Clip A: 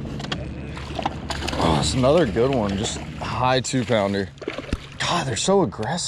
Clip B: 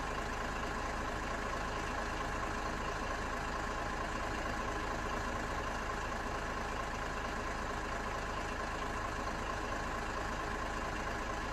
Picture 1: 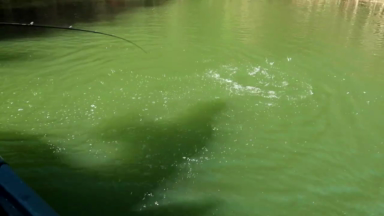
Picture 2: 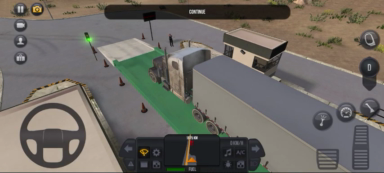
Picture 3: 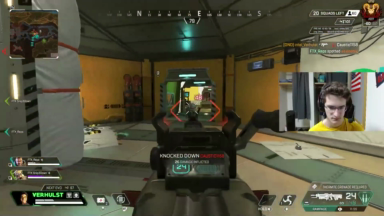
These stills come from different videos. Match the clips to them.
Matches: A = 1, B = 2